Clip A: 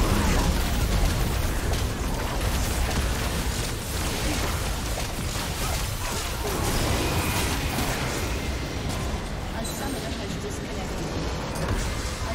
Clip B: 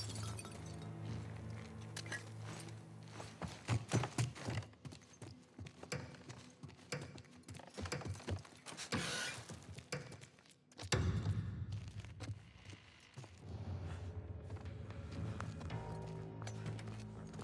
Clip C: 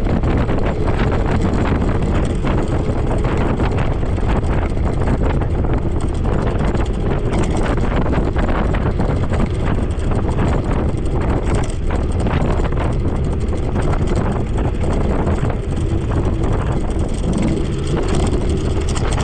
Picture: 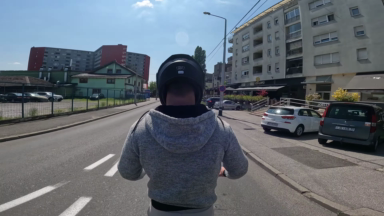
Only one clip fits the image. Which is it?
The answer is C